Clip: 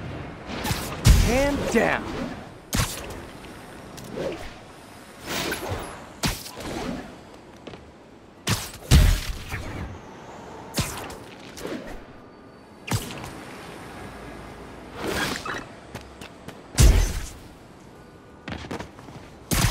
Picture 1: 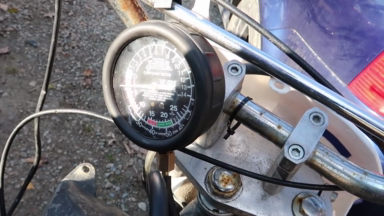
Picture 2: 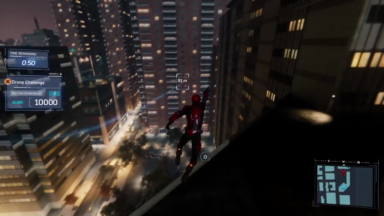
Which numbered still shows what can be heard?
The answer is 2